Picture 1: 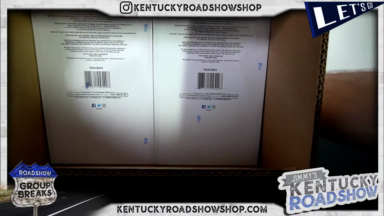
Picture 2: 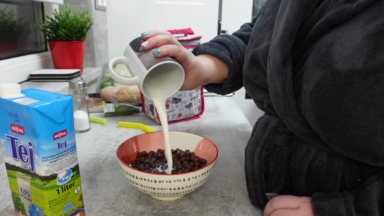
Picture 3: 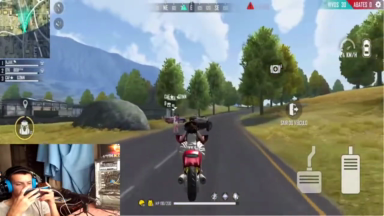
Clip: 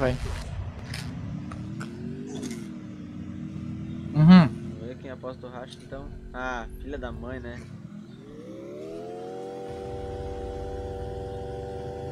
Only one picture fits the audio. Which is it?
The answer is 3